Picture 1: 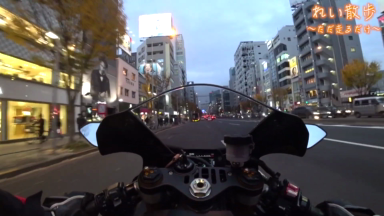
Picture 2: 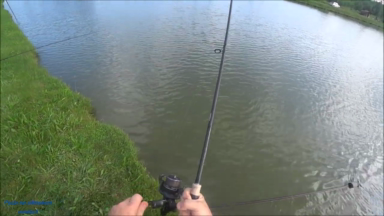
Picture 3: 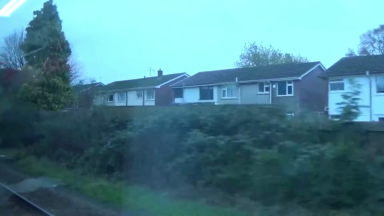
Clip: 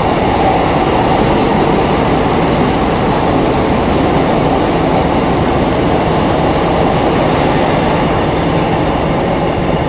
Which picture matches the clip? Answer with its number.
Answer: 3